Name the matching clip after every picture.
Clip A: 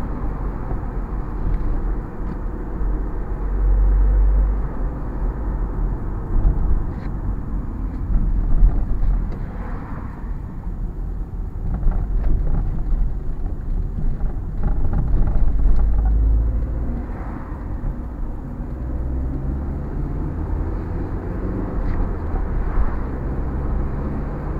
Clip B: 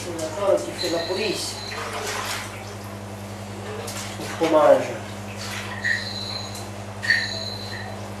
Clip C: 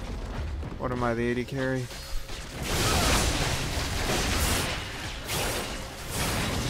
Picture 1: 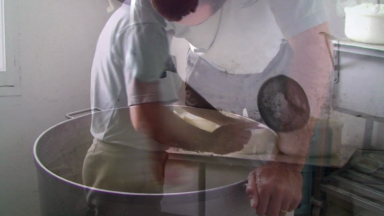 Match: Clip B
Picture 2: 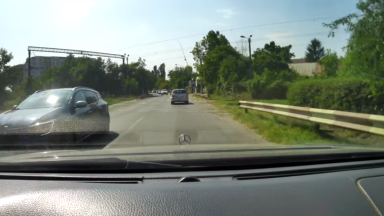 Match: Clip A